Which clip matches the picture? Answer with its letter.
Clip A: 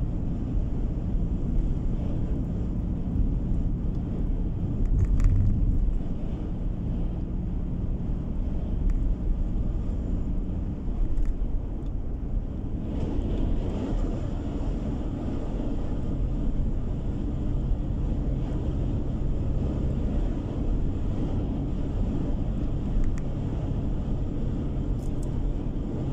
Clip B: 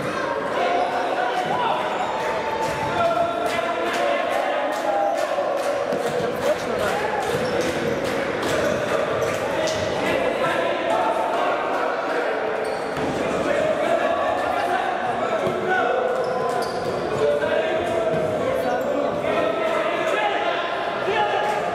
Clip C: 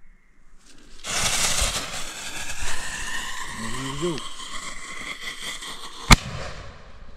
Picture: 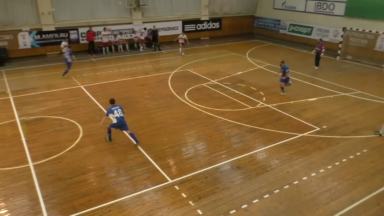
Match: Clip B